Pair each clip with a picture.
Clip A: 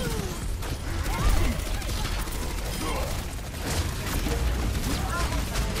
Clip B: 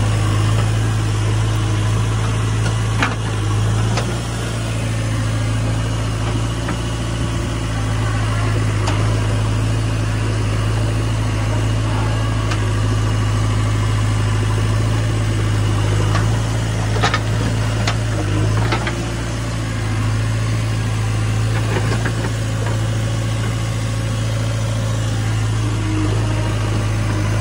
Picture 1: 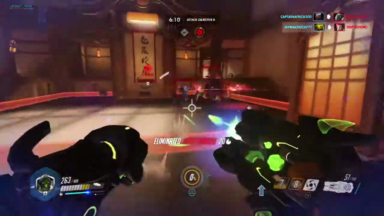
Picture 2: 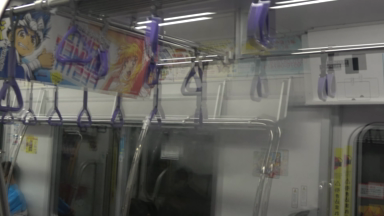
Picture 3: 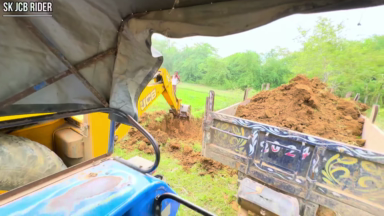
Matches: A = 1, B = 3